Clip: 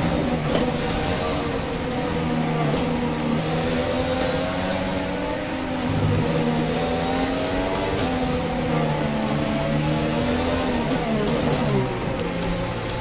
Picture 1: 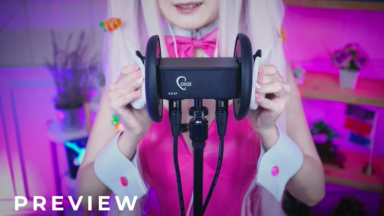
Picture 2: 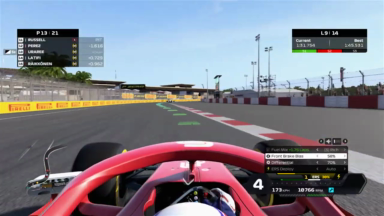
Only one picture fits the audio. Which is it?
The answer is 2